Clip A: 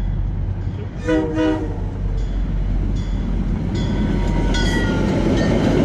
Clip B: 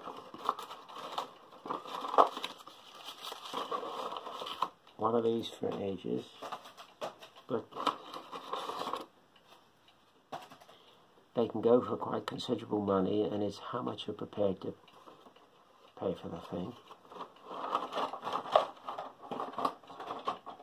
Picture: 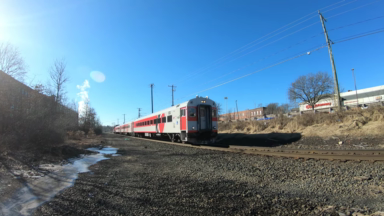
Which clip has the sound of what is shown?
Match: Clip A